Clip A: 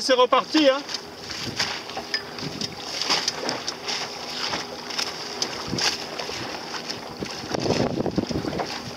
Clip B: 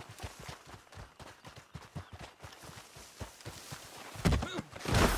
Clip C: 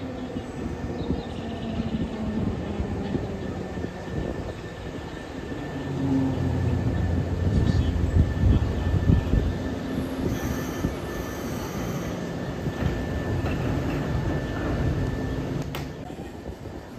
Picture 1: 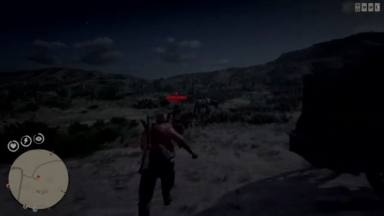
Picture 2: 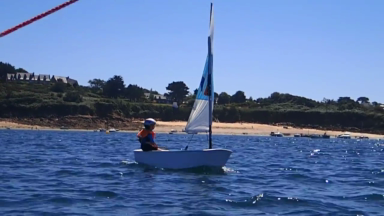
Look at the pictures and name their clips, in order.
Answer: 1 B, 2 A